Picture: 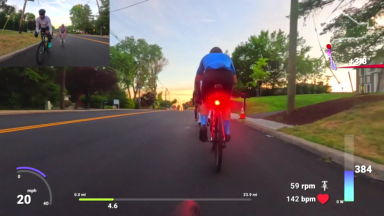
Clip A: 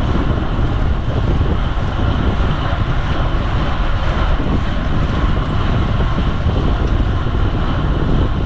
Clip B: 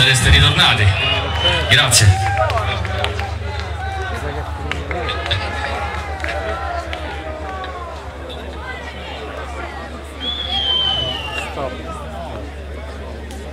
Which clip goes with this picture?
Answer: A